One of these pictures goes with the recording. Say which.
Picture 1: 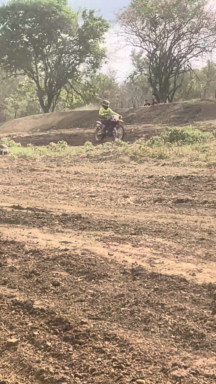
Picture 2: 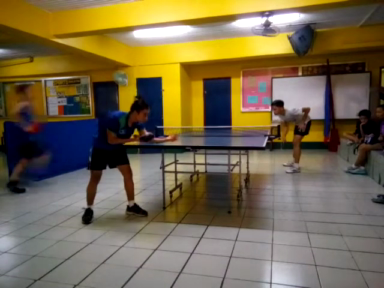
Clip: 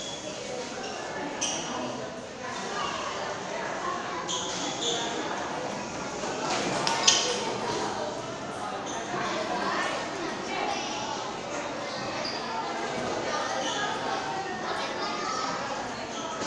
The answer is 2